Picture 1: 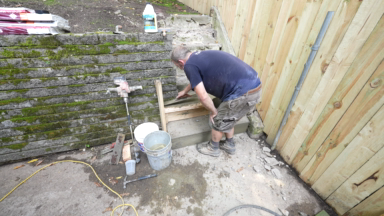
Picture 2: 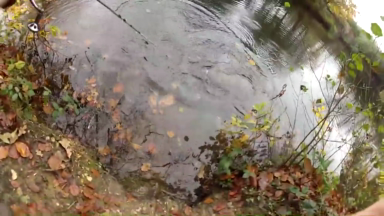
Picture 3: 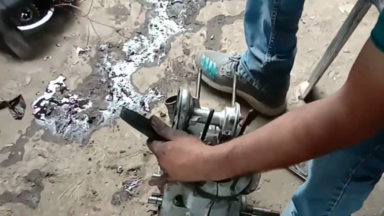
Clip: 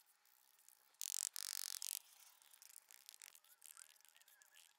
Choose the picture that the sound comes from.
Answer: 1